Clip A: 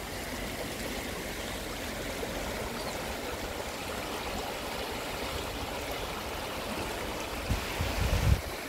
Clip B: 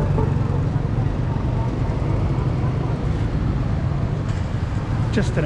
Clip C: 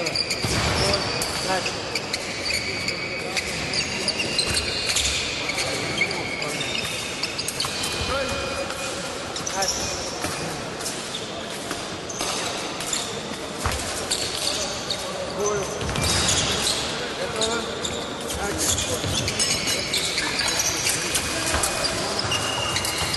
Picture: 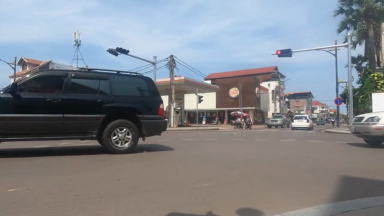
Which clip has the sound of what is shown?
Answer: B